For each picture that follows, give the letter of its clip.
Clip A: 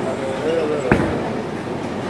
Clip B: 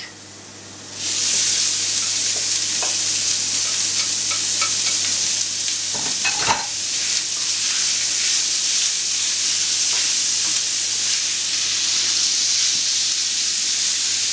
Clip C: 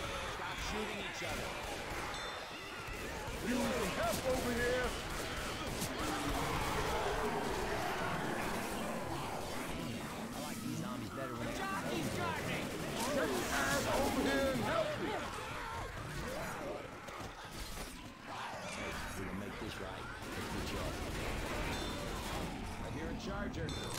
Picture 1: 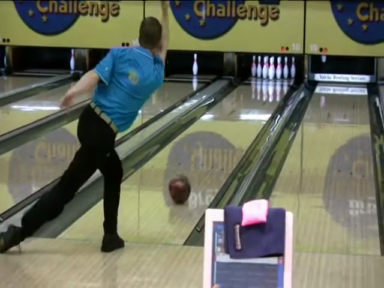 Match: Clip A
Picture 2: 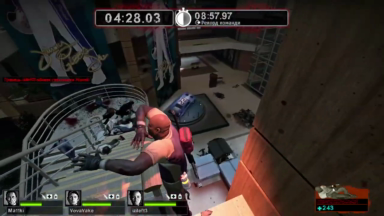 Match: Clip C